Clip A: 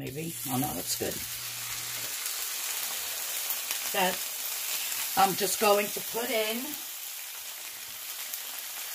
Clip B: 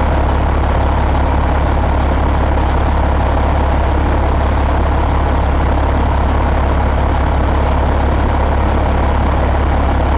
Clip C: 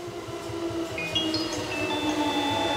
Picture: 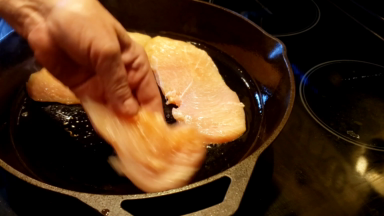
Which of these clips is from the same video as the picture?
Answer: A